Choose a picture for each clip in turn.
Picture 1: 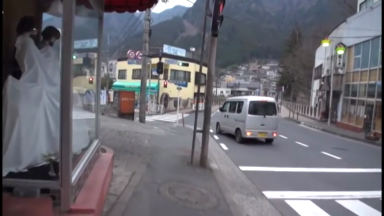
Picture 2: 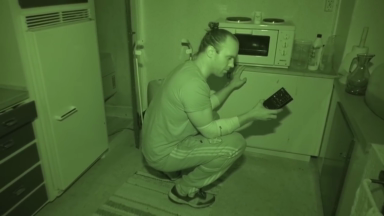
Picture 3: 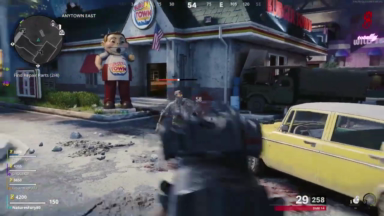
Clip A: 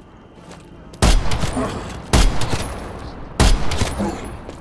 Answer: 3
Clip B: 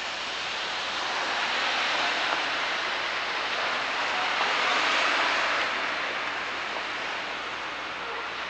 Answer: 1